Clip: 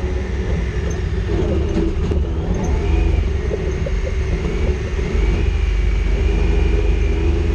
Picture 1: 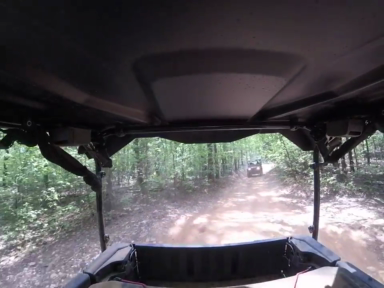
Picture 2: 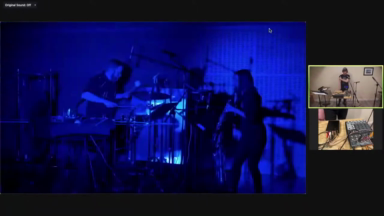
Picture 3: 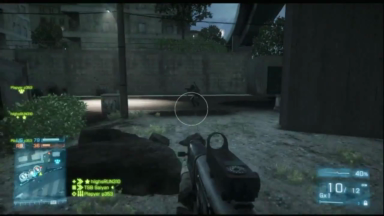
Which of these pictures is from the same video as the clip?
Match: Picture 1